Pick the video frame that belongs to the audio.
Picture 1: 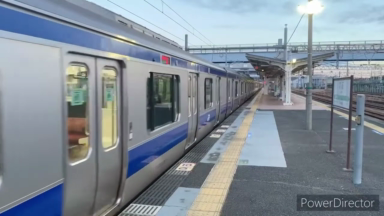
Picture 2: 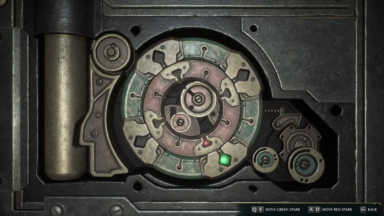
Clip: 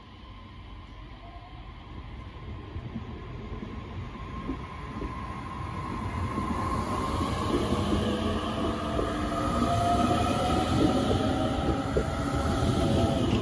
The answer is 1